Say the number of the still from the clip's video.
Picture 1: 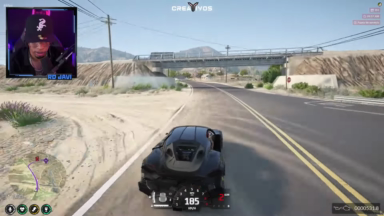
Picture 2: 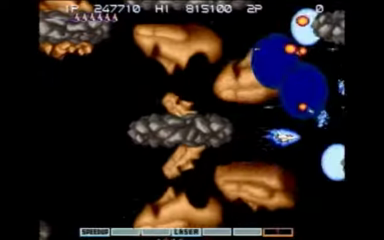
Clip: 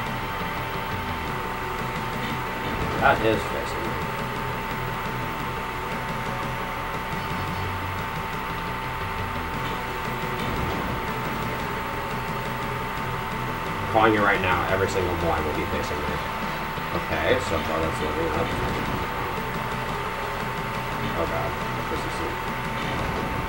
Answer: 2